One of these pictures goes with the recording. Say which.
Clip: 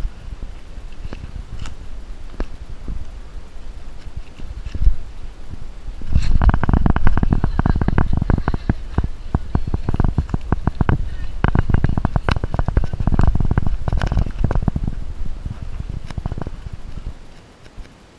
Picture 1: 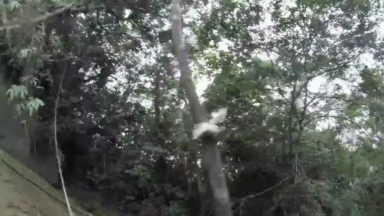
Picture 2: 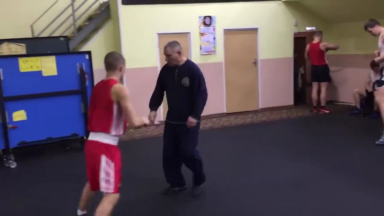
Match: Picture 1